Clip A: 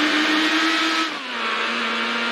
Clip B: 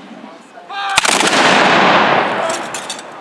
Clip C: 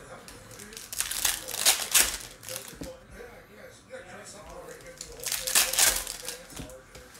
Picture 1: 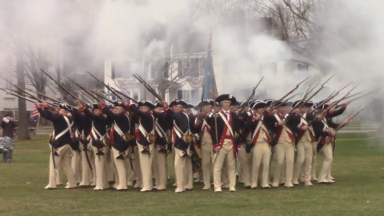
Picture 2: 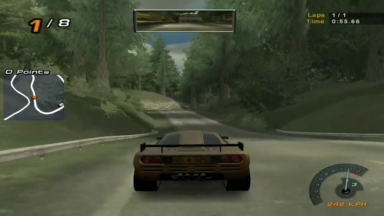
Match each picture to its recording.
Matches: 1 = B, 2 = A